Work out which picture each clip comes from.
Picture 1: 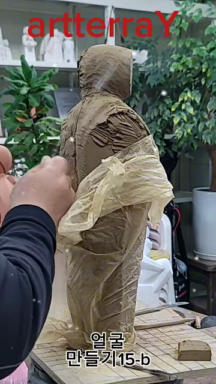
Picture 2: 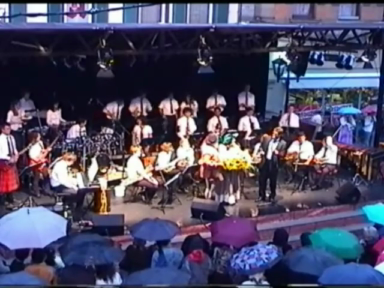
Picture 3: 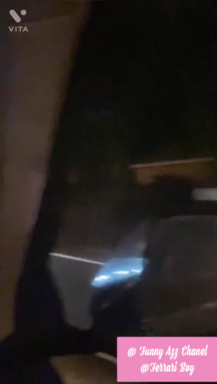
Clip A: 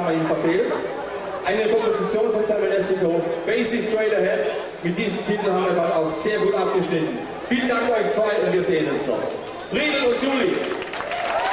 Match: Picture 2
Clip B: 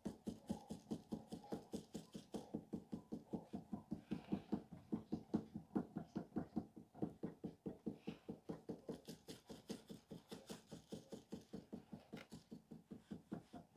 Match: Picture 1